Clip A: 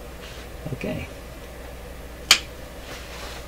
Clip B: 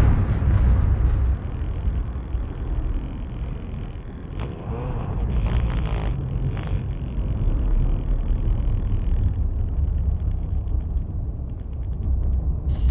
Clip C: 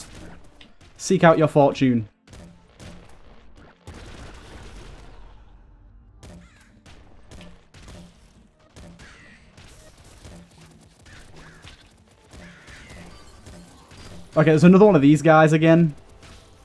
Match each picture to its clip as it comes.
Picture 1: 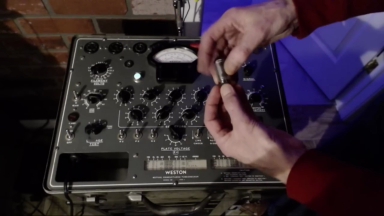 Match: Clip A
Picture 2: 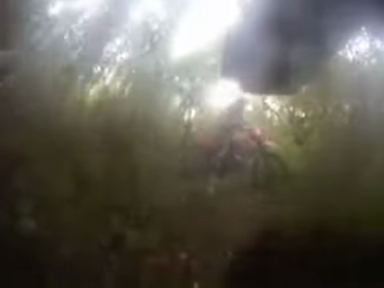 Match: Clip B